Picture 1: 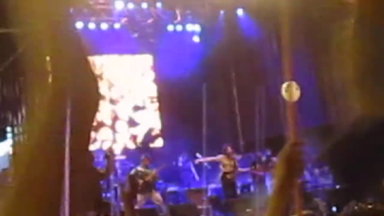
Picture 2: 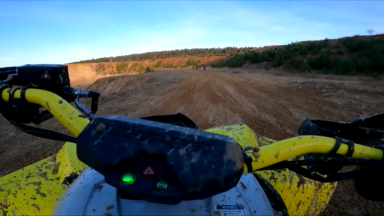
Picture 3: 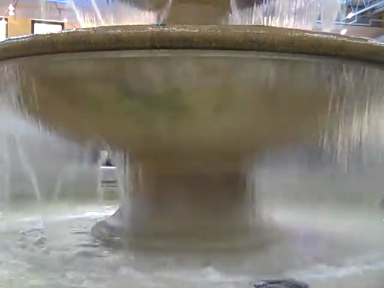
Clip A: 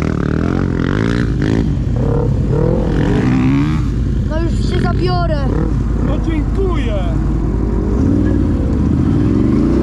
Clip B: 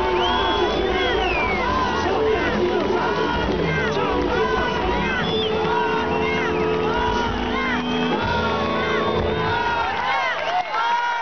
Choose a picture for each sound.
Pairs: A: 2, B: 1